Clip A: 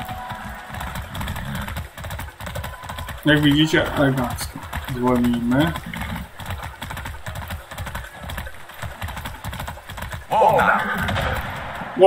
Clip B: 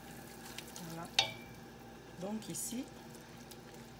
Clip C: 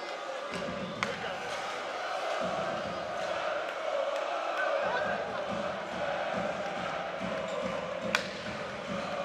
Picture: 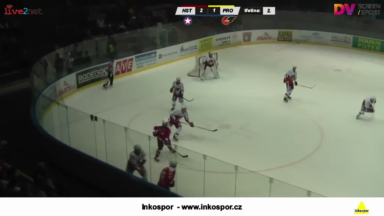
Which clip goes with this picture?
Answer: C